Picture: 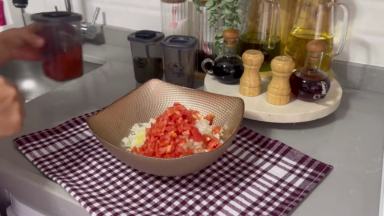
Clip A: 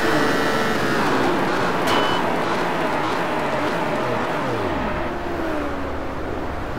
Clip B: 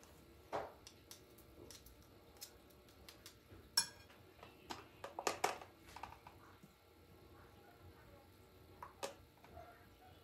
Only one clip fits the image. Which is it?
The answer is B